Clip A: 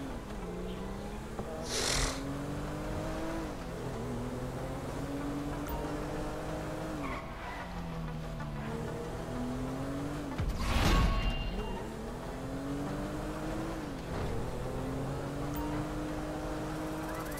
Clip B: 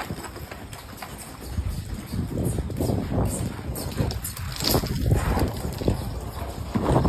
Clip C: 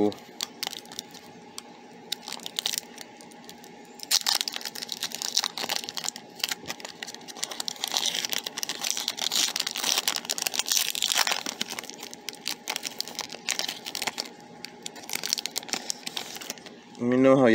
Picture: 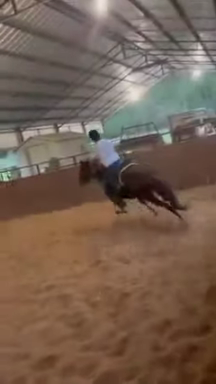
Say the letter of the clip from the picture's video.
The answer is B